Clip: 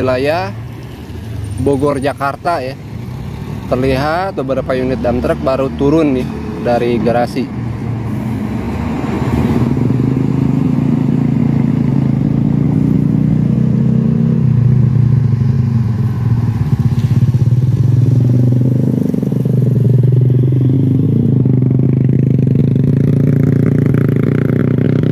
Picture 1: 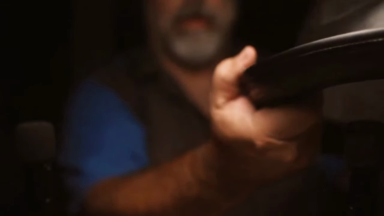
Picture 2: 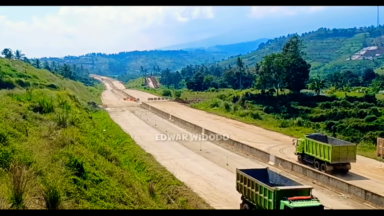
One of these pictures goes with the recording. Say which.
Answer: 2